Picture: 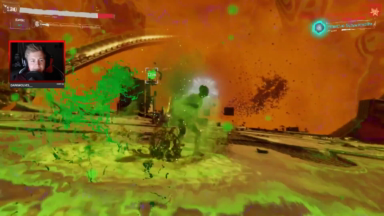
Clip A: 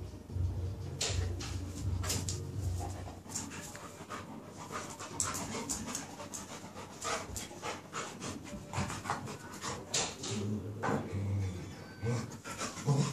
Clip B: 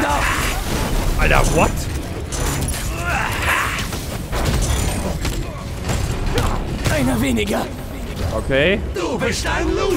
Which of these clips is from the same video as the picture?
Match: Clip B